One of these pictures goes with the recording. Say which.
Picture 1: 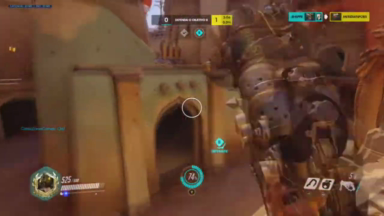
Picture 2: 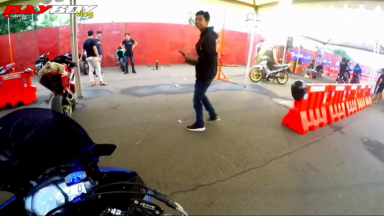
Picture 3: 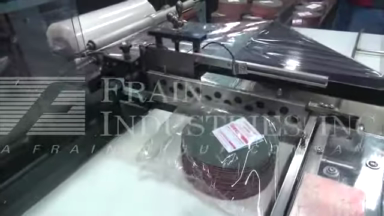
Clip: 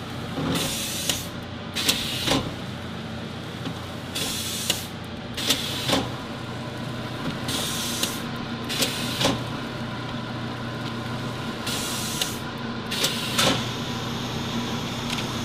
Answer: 3